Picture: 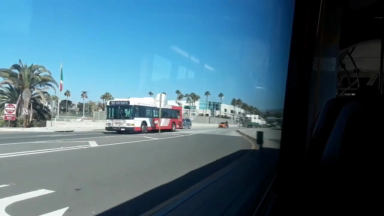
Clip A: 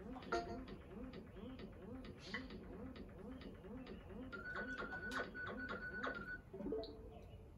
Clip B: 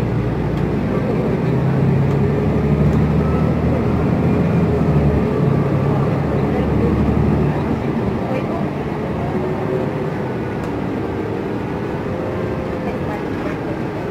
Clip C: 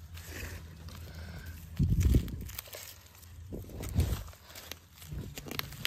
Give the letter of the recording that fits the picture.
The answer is B